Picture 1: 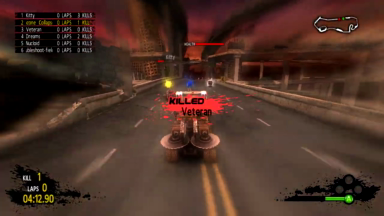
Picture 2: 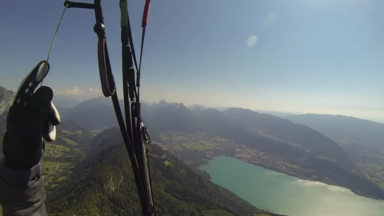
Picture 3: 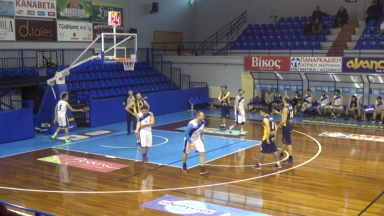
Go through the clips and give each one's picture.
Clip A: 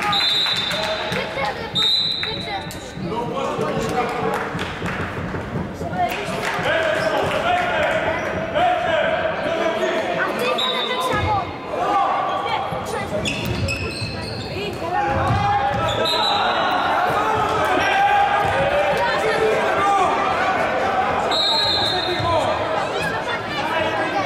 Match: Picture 3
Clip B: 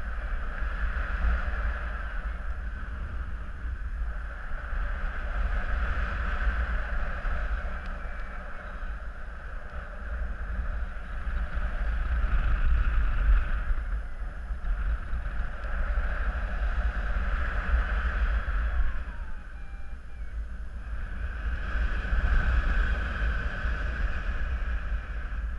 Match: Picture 2